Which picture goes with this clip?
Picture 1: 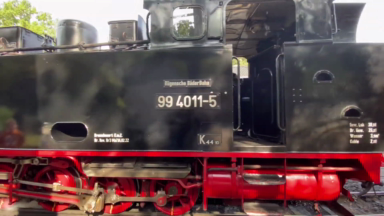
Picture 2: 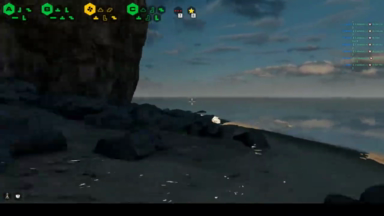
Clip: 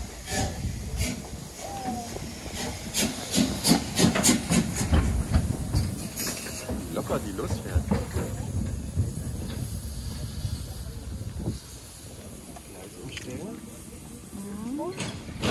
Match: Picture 1